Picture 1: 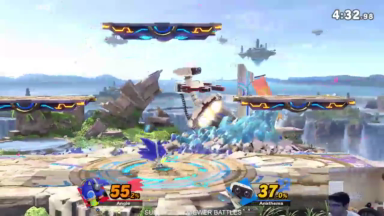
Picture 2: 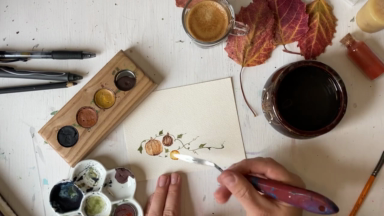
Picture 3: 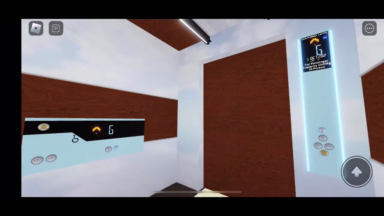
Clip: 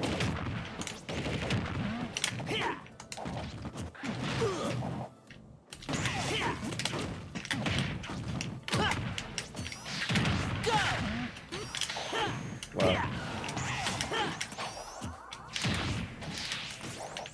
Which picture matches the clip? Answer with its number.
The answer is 1